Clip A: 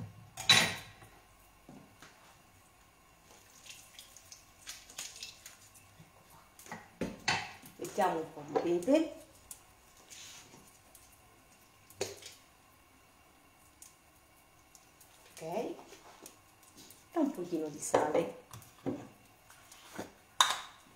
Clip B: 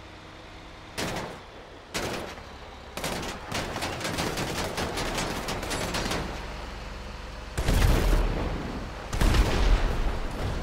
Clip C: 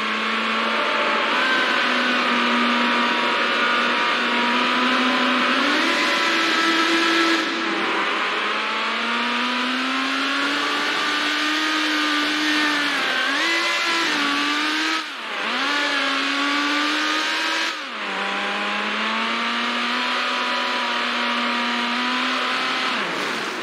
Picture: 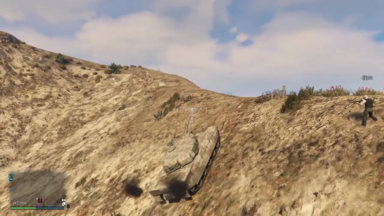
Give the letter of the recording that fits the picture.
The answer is B